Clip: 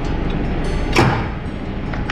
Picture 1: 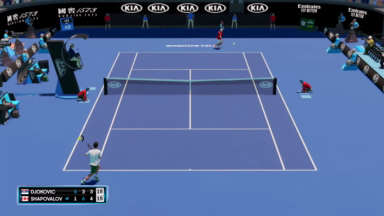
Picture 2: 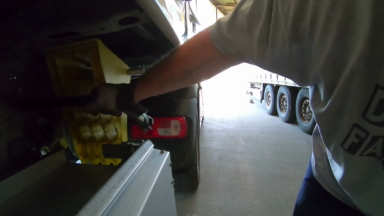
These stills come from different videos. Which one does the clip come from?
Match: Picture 2